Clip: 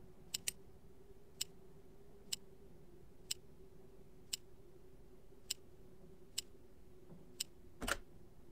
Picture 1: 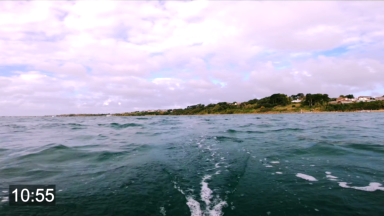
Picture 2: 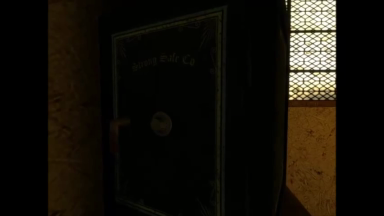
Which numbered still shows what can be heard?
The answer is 2